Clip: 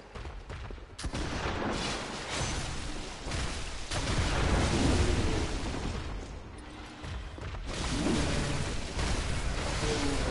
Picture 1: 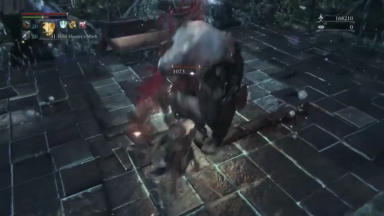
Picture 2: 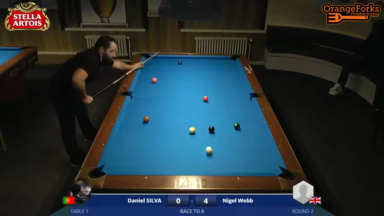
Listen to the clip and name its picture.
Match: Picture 1